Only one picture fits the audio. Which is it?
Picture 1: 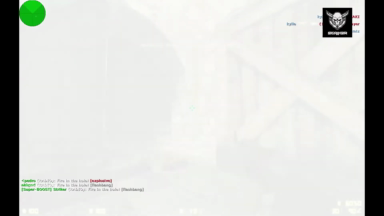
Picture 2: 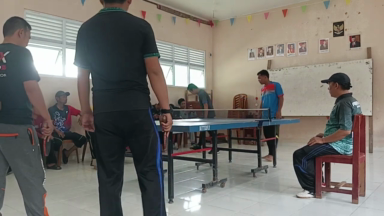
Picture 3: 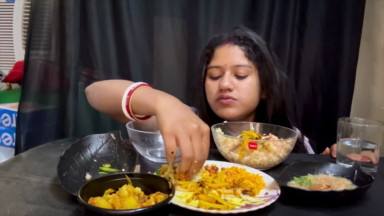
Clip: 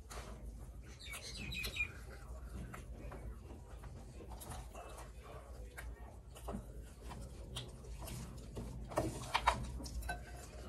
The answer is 3